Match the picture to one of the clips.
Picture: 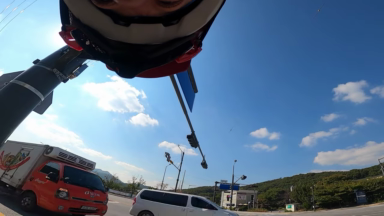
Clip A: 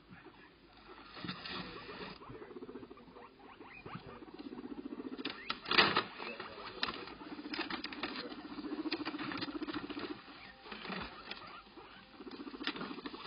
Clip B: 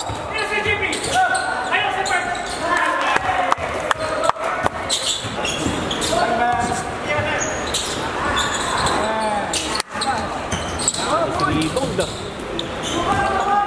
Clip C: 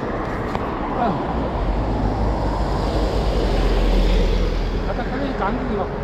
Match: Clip C